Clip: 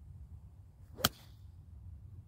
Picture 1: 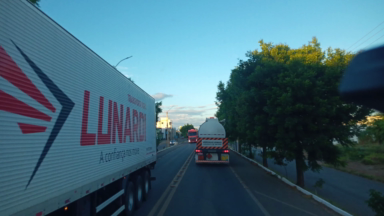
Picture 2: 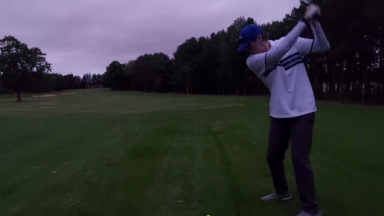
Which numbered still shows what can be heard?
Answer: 2